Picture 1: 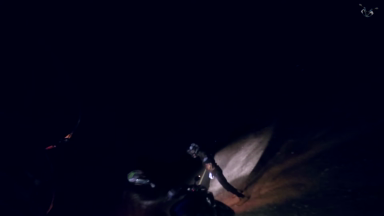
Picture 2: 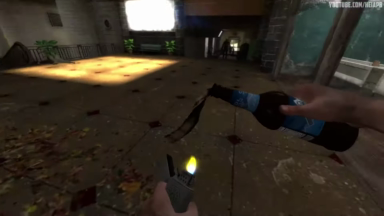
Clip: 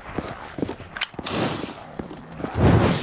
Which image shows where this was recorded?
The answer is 2